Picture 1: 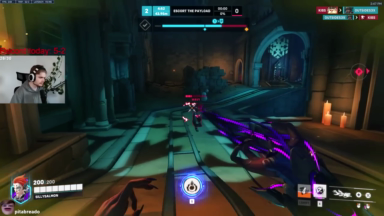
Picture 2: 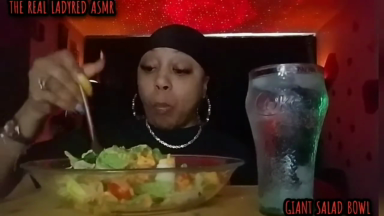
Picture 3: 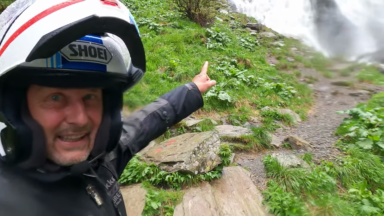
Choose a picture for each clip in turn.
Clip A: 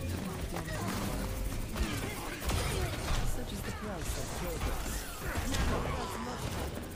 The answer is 1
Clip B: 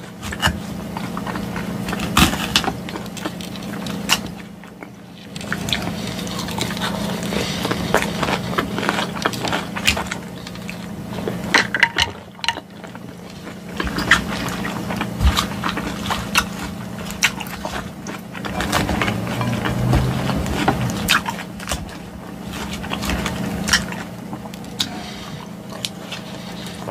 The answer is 2